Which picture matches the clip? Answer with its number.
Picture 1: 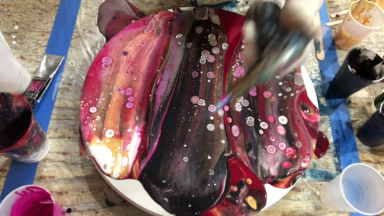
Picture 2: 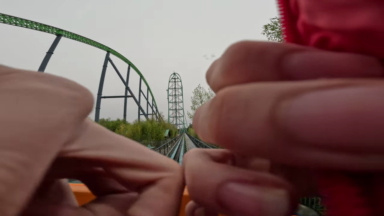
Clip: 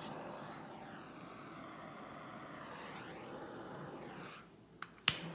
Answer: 1